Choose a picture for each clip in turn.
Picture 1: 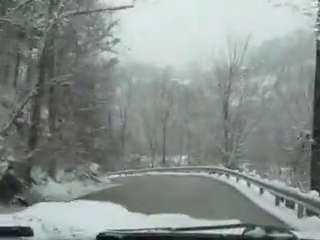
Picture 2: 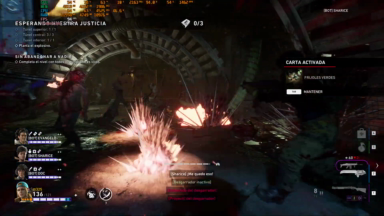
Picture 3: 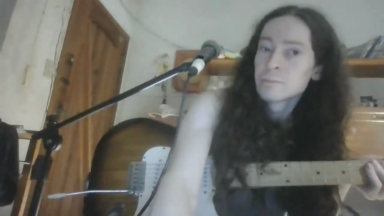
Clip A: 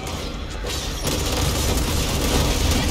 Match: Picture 2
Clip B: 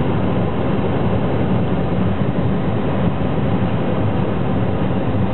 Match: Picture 1